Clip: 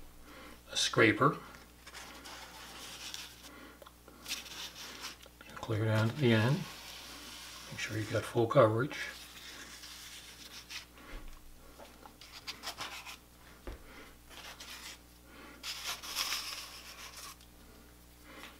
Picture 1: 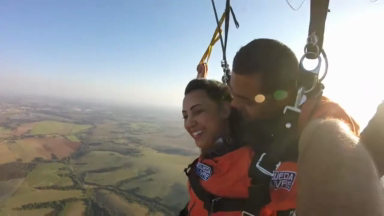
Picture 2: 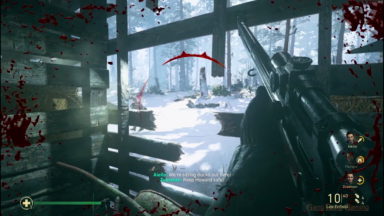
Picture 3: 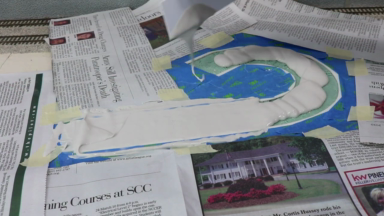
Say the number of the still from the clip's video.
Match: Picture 3